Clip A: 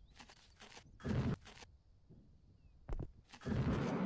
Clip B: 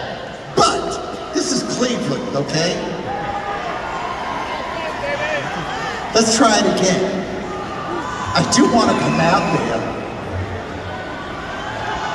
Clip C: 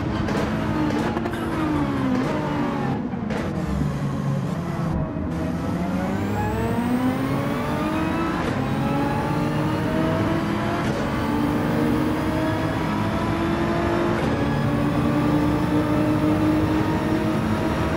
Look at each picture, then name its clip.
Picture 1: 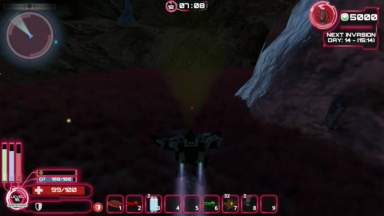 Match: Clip A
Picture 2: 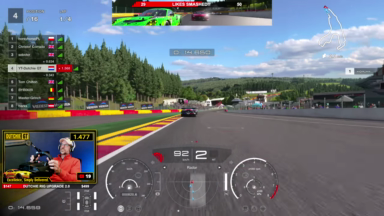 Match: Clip C